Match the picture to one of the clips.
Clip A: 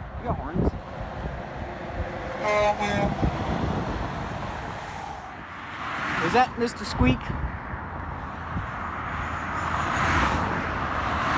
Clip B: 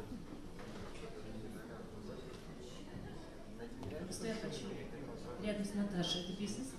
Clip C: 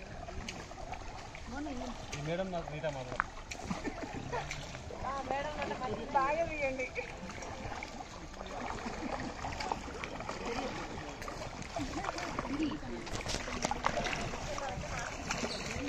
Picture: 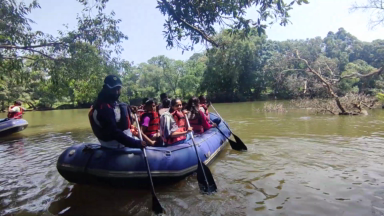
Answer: C